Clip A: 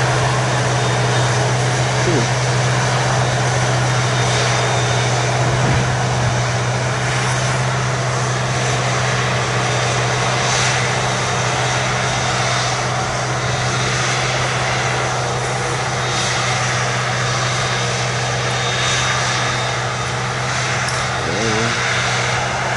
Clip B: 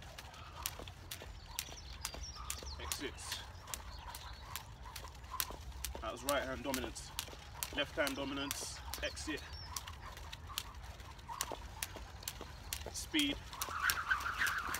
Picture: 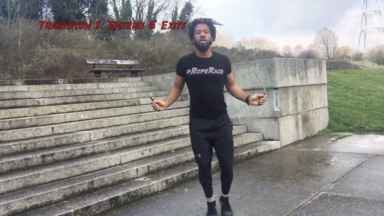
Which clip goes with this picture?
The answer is B